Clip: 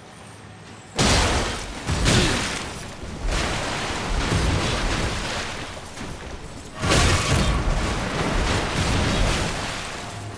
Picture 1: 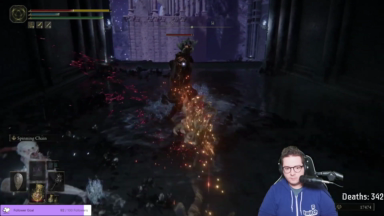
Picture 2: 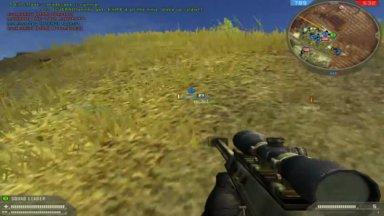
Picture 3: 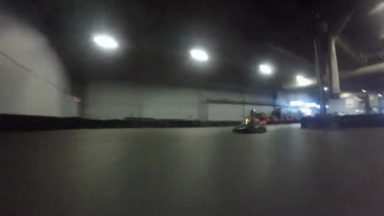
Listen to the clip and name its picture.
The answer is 1